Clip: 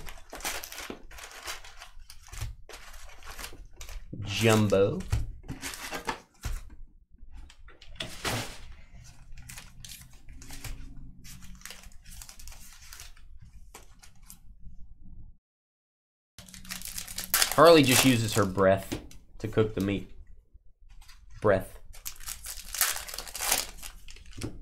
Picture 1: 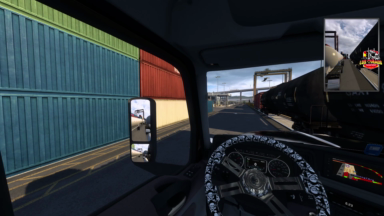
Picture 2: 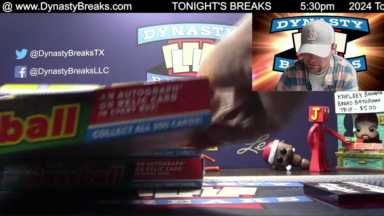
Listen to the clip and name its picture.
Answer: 2